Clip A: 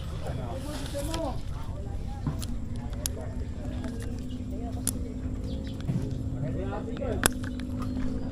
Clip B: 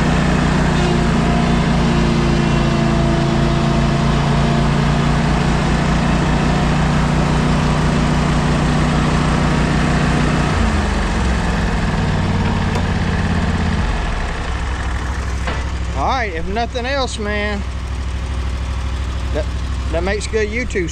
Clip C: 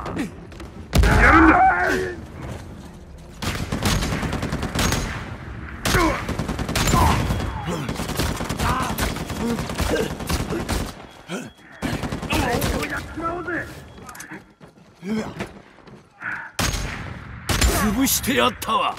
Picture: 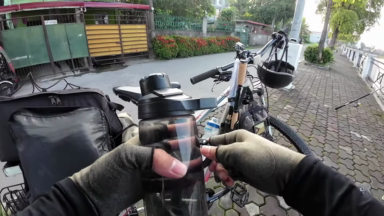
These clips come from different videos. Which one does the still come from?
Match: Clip A